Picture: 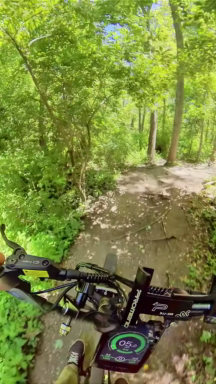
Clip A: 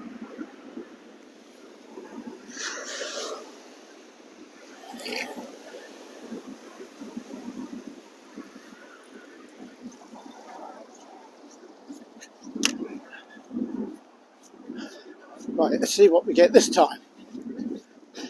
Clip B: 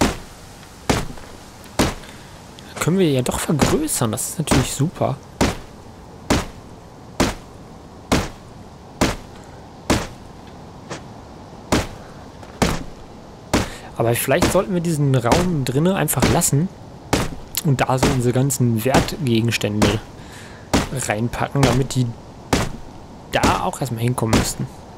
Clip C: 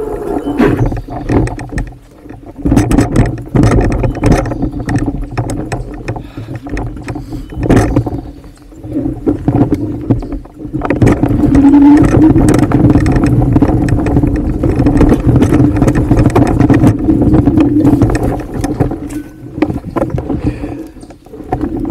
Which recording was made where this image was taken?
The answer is C